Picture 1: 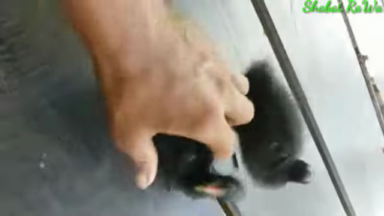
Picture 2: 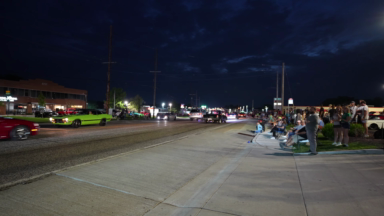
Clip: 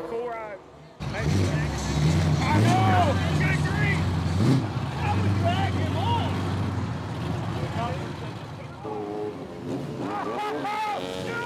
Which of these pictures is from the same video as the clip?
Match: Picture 2